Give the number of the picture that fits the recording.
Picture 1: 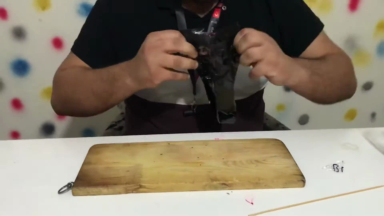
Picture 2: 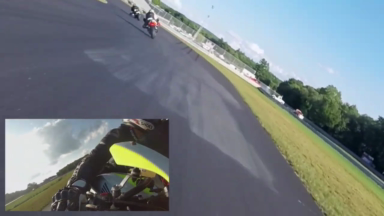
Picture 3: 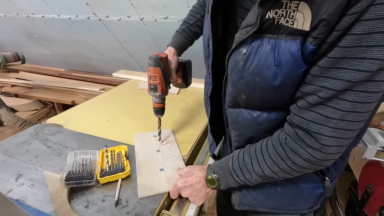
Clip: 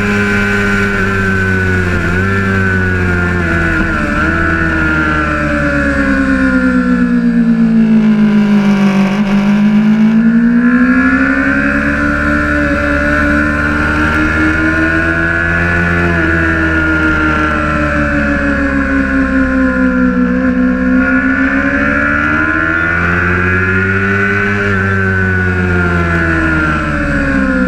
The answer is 2